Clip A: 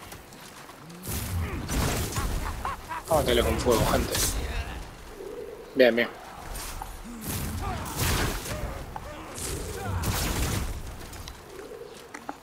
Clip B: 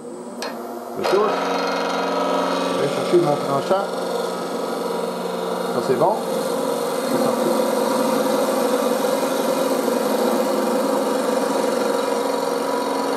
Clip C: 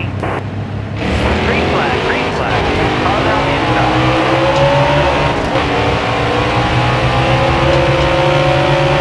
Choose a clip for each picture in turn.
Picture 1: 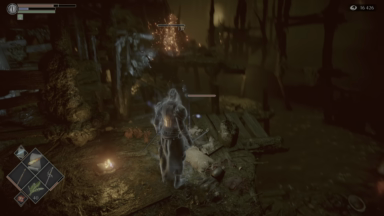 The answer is A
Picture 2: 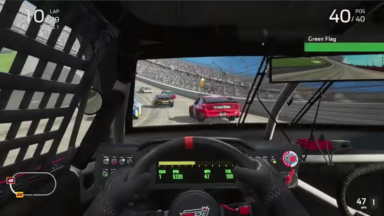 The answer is C